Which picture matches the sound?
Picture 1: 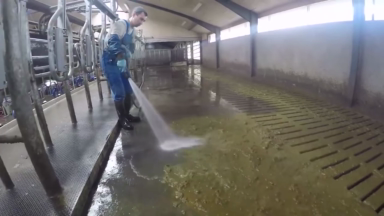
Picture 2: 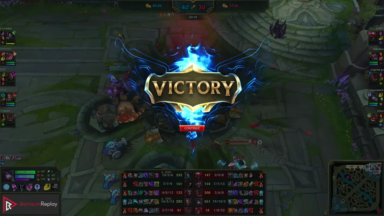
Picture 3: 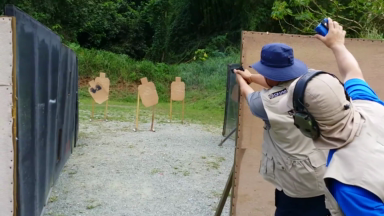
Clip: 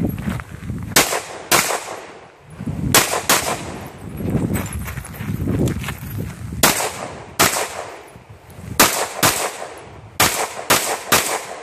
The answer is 3